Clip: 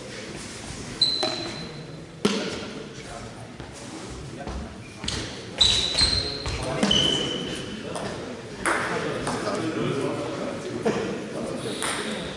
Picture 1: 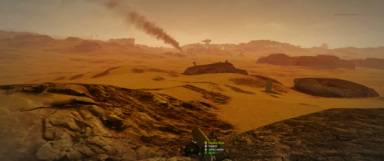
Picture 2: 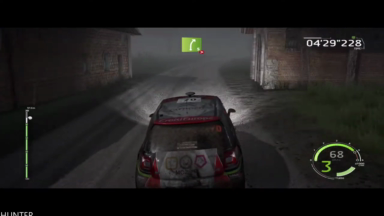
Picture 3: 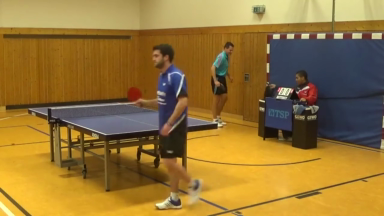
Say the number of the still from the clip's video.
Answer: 3